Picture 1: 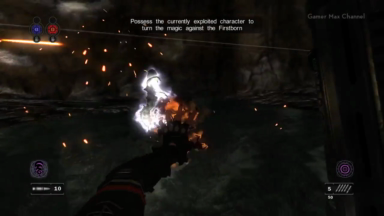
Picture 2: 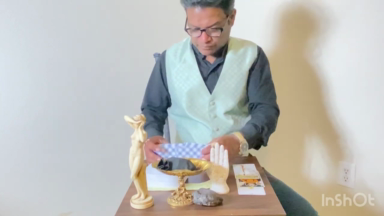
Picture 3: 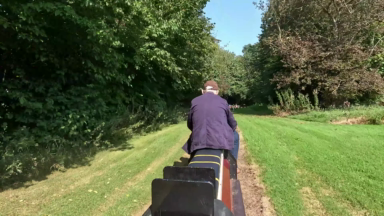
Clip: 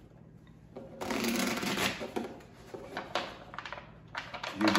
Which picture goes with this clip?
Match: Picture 2